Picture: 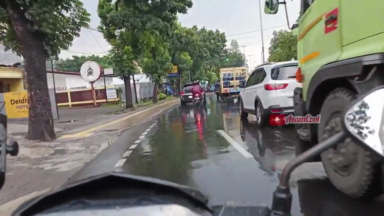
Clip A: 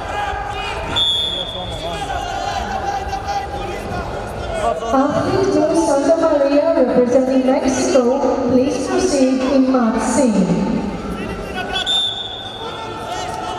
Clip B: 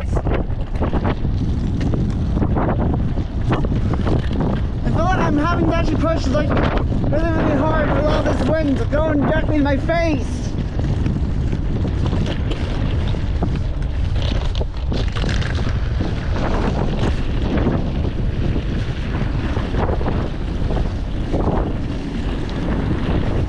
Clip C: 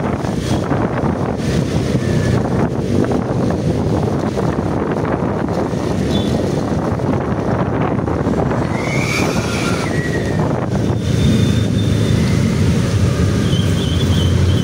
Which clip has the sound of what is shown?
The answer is C